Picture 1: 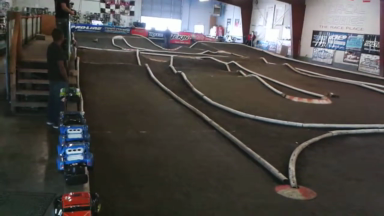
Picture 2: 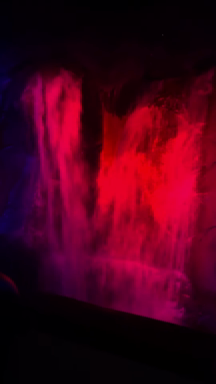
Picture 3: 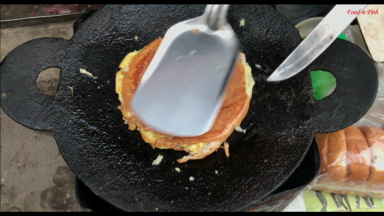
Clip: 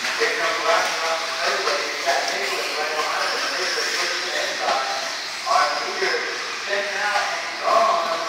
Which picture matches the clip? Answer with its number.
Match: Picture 1